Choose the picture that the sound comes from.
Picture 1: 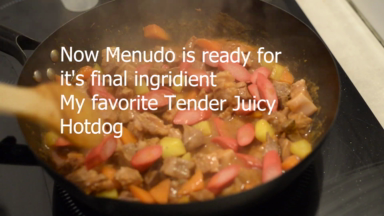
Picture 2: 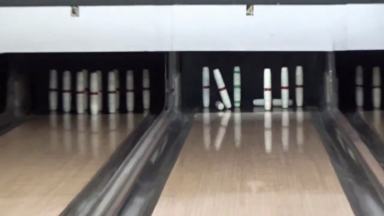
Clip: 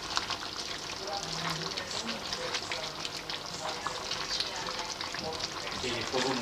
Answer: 1